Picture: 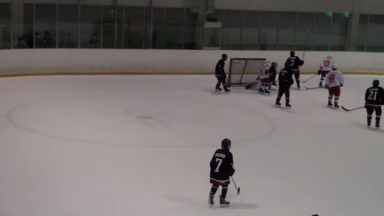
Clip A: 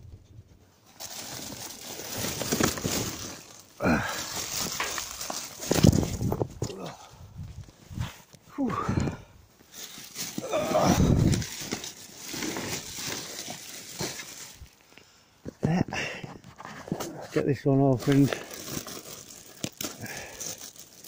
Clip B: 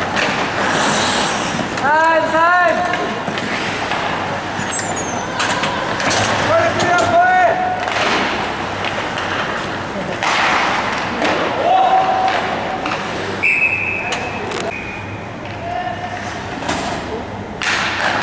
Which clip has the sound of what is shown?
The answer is B